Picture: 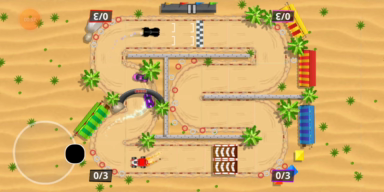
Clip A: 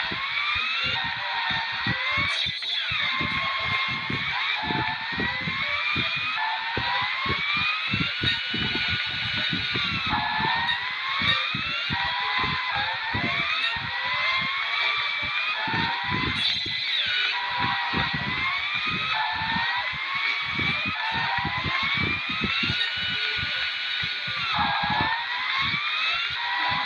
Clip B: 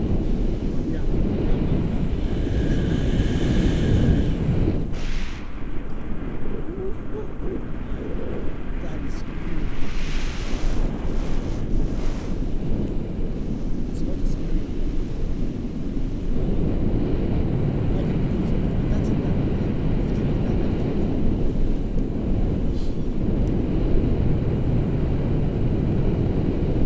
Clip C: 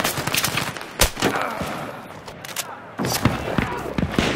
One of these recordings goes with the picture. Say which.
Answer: A